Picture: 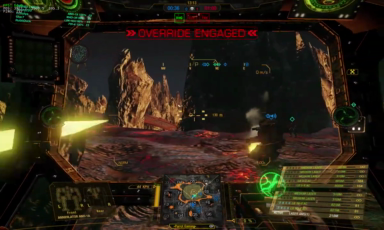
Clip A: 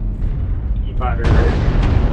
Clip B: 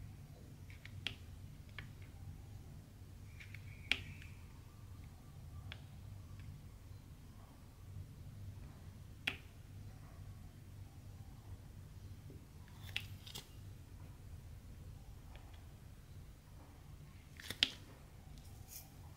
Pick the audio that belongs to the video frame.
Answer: A